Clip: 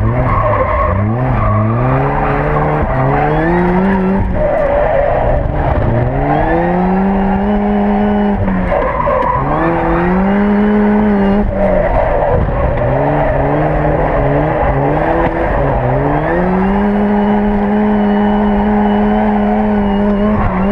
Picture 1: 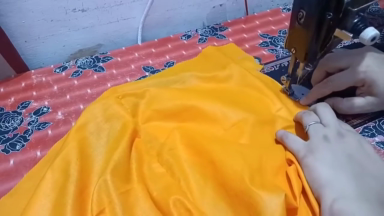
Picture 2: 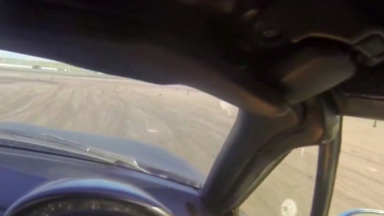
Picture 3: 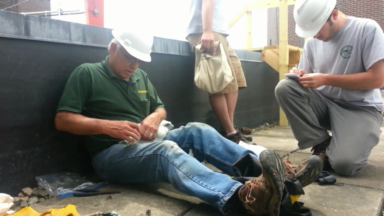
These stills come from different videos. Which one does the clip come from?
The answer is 2